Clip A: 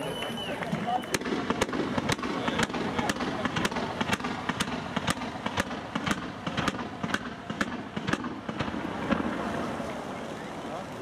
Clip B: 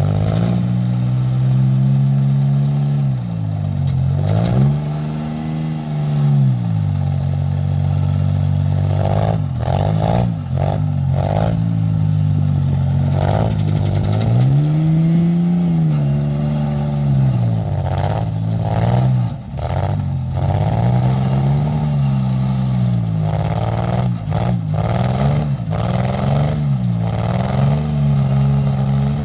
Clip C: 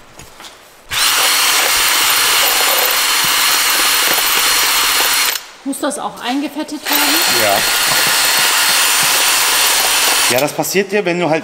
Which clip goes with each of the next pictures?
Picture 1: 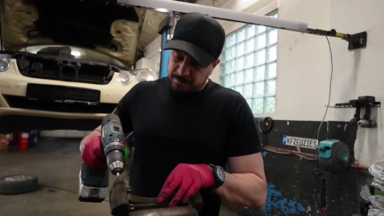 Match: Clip C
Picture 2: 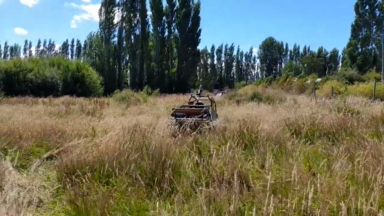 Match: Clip B